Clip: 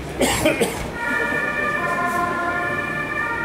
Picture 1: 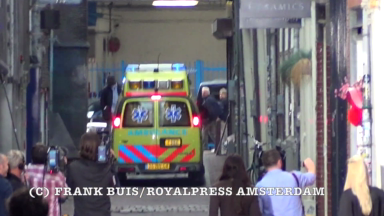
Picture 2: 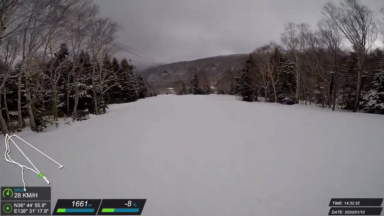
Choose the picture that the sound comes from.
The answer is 1